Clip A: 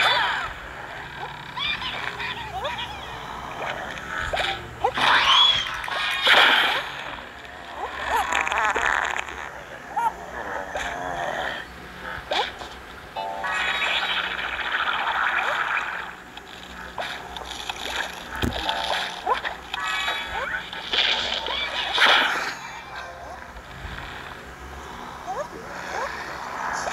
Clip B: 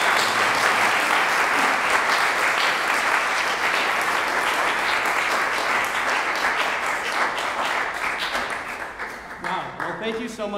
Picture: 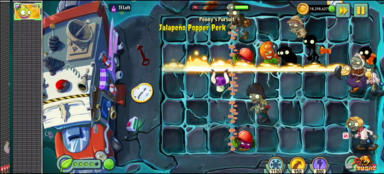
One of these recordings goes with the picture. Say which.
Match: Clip A